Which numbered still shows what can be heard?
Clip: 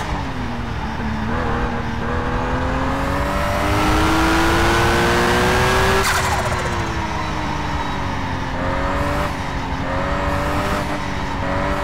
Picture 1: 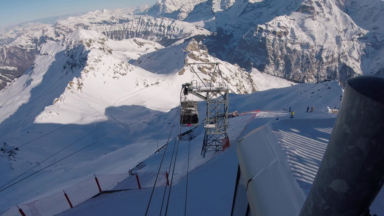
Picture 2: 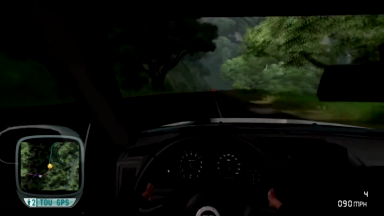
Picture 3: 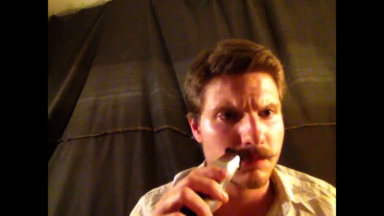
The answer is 2